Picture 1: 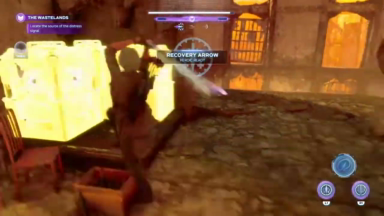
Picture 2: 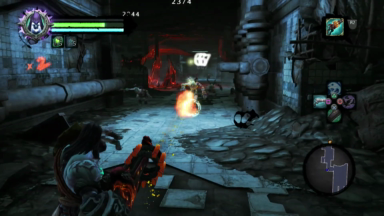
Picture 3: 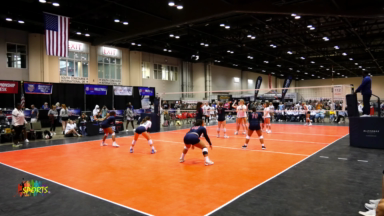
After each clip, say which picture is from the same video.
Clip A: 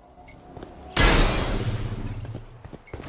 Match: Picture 1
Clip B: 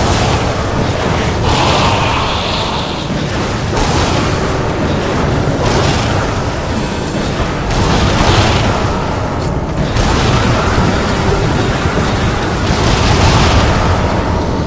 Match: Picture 2